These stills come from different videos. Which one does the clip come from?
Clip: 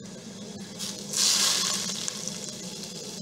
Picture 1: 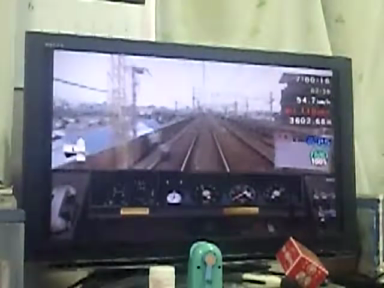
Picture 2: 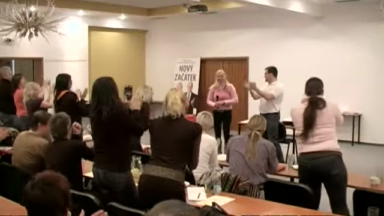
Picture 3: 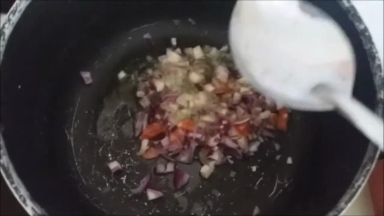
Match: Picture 3